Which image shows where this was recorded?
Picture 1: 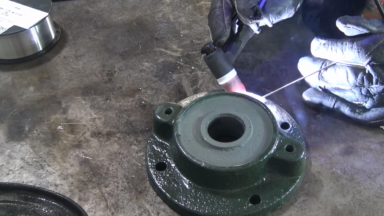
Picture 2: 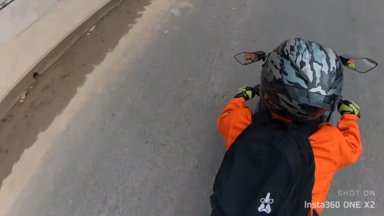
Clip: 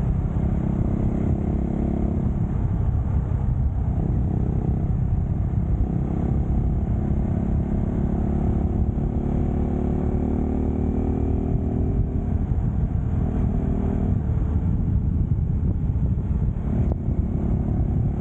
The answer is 2